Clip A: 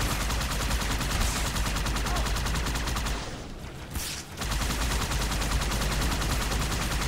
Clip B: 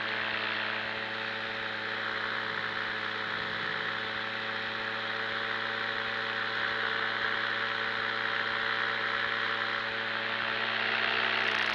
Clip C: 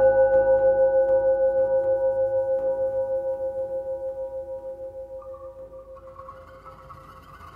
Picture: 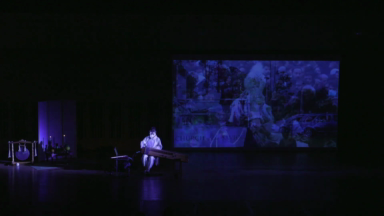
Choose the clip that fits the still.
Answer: C